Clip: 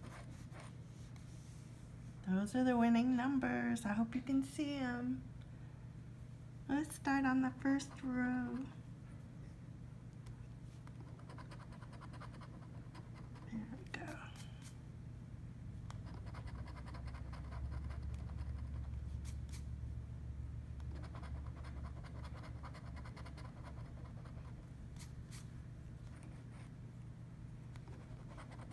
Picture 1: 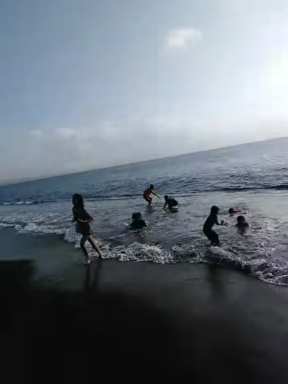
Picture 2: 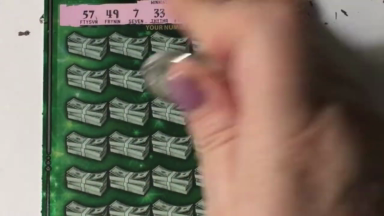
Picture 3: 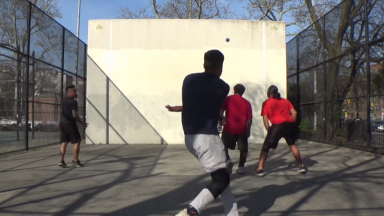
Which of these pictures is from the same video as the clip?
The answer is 2